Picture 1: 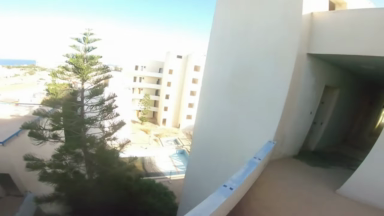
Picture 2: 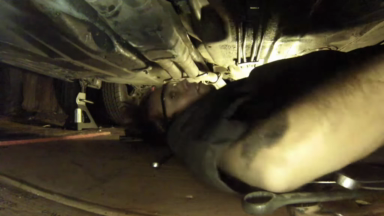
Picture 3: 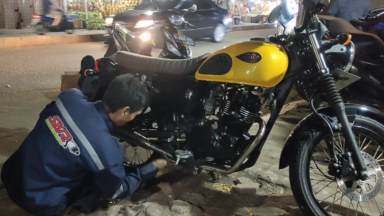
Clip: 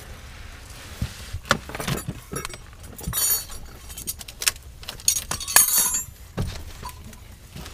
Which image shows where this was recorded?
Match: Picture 2